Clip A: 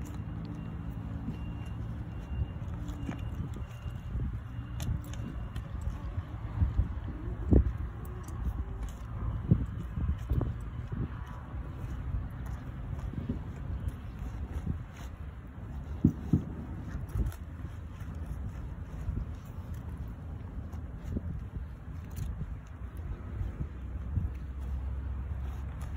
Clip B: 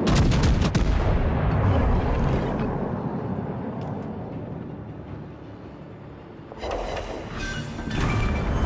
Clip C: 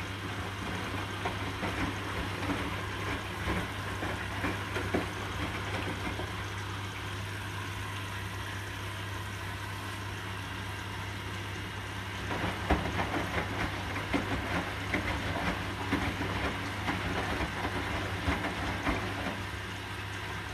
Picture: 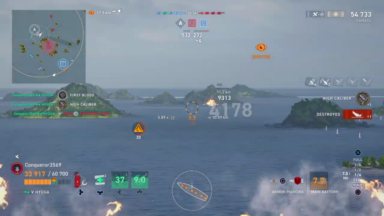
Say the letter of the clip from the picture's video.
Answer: B